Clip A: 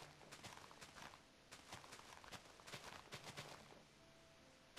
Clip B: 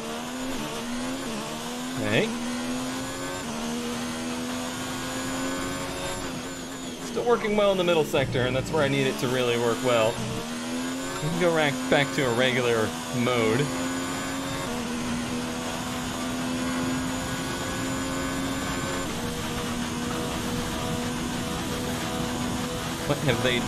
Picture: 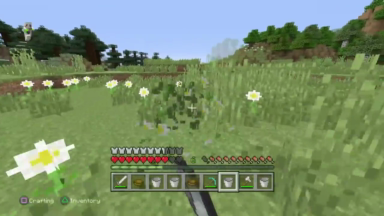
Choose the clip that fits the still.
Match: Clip A